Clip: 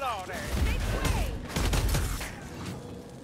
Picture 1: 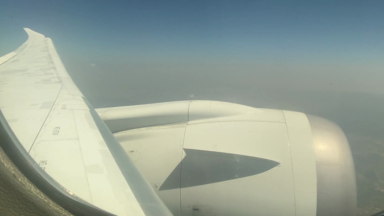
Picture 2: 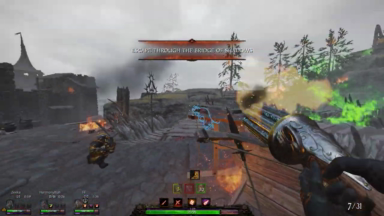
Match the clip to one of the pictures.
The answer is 2